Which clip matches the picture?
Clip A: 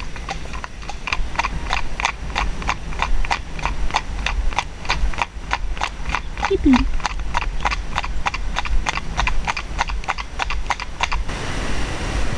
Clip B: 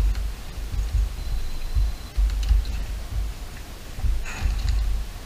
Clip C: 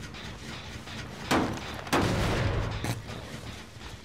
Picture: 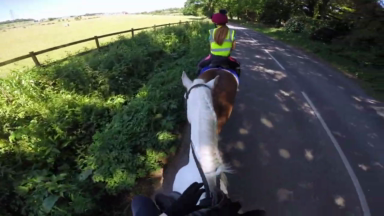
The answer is A